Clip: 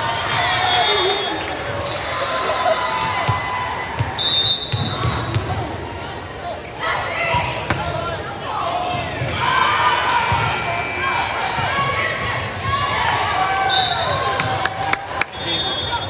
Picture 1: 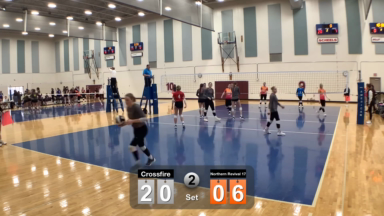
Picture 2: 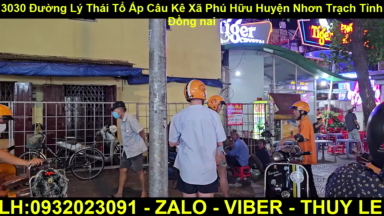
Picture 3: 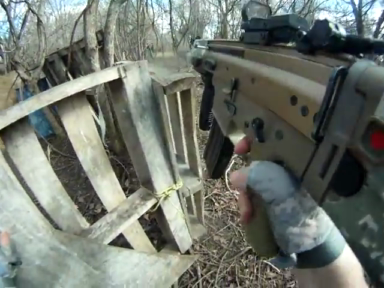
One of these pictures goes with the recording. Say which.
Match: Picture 1